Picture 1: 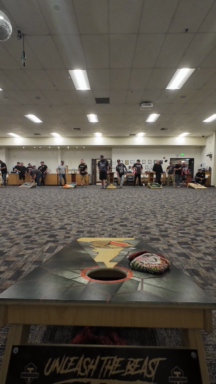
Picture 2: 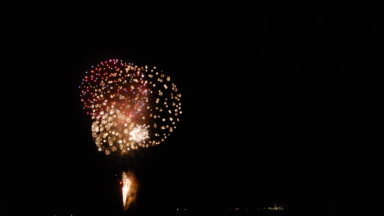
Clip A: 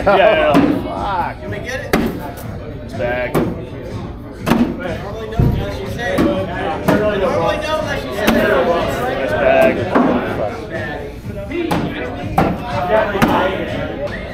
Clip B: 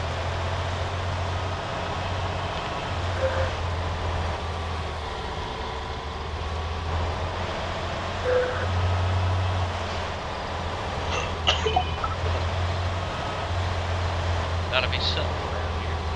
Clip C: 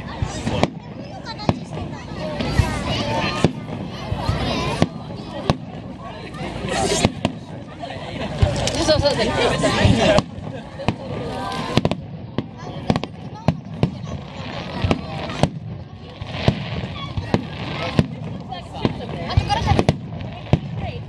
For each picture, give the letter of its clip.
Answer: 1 A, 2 C